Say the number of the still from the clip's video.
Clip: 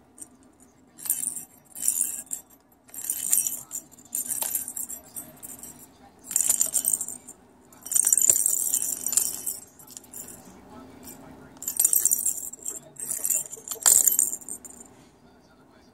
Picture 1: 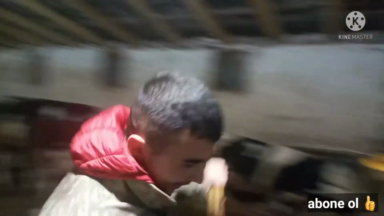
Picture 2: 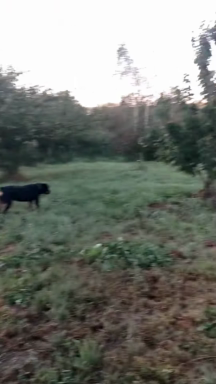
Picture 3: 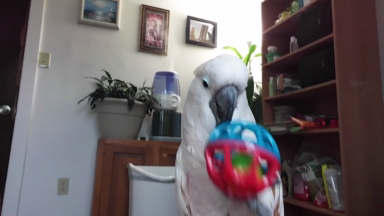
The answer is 3